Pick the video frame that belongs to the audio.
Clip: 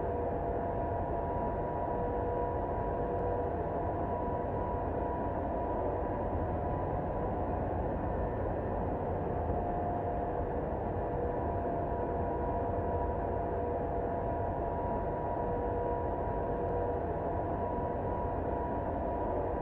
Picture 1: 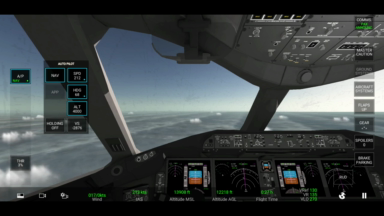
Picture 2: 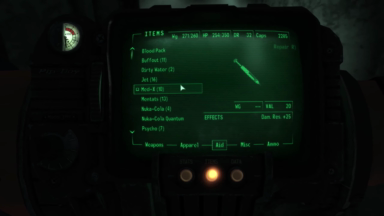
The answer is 1